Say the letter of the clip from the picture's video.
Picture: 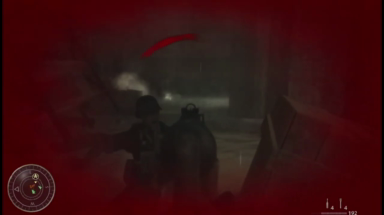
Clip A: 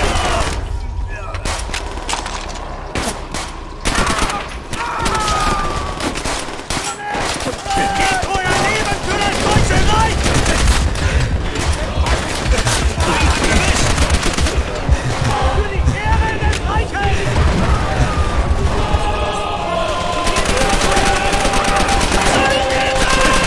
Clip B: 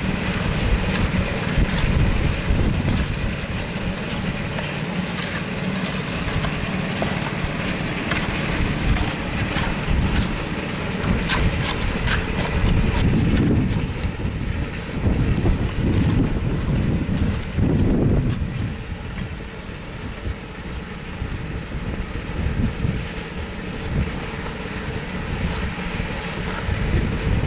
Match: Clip A